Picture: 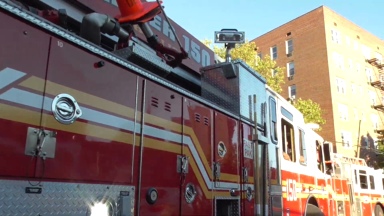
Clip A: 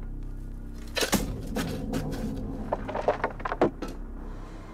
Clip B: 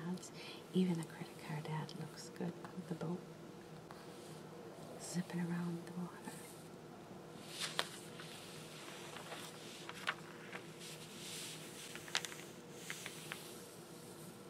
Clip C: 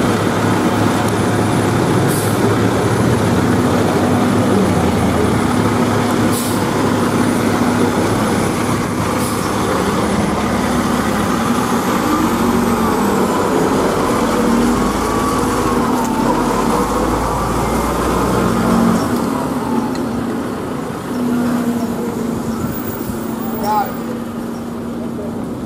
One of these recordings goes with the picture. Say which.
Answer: C